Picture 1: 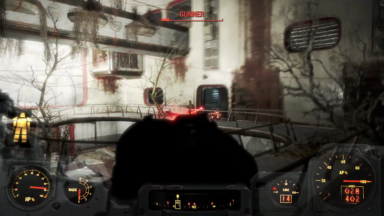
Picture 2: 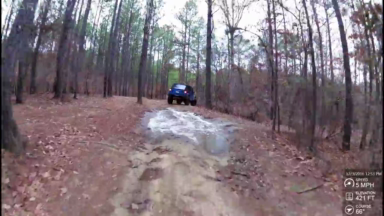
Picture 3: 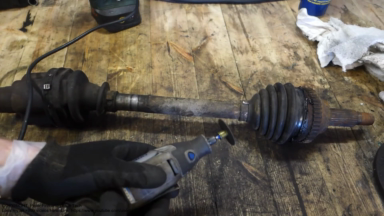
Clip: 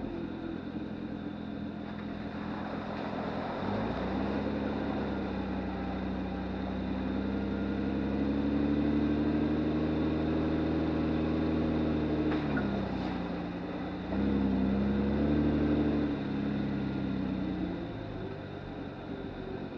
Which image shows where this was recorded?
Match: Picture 2